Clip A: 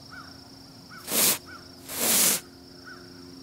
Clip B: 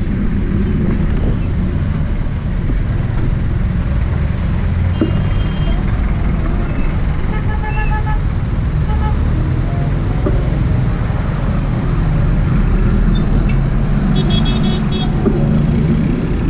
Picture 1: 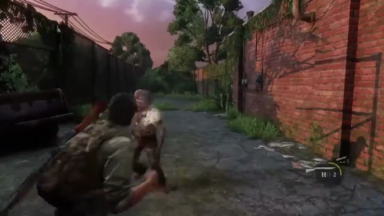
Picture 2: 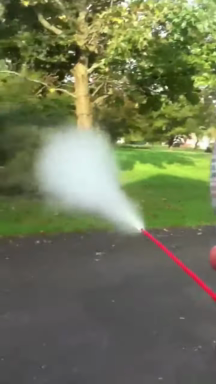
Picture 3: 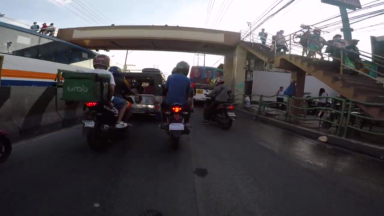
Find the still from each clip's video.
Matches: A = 2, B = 3